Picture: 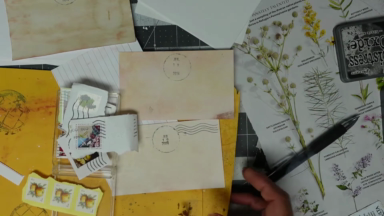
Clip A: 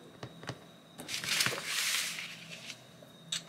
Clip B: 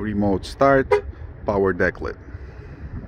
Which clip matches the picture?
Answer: A